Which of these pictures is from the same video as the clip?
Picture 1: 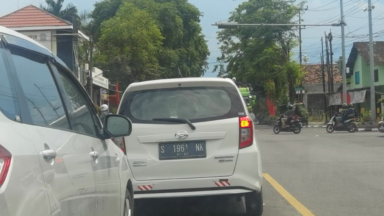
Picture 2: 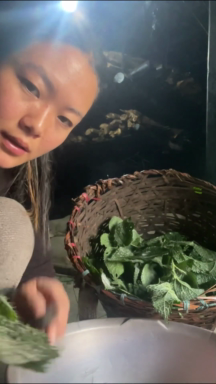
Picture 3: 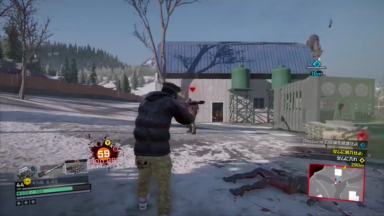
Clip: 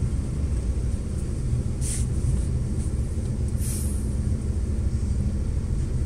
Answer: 1